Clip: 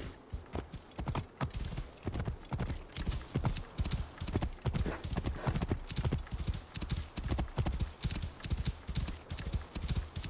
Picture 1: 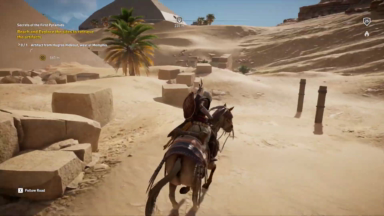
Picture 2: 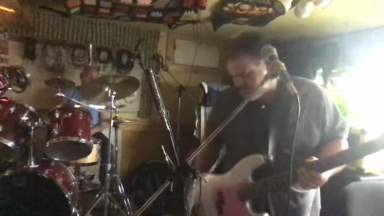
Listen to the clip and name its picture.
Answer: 1